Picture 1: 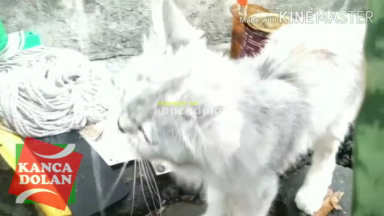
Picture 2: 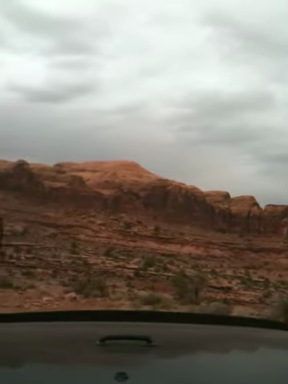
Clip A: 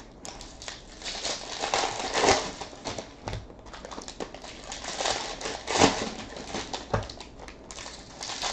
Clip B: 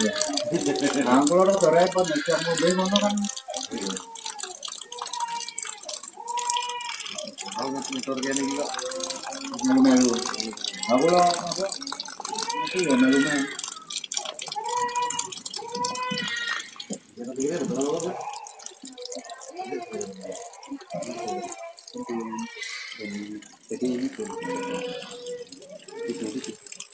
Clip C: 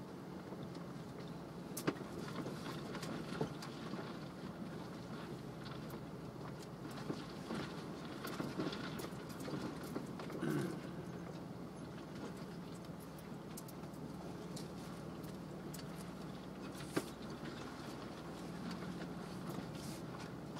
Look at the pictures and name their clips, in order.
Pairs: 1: B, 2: C